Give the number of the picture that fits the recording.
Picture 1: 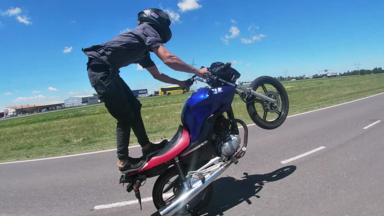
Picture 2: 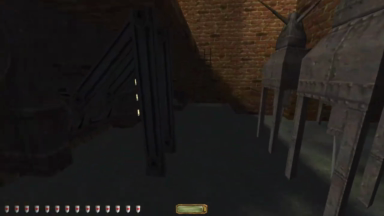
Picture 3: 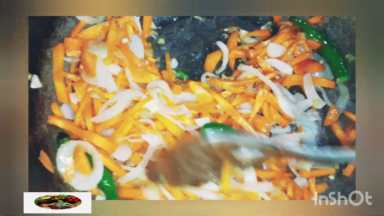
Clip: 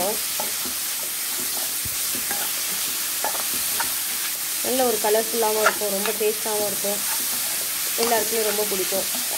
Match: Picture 3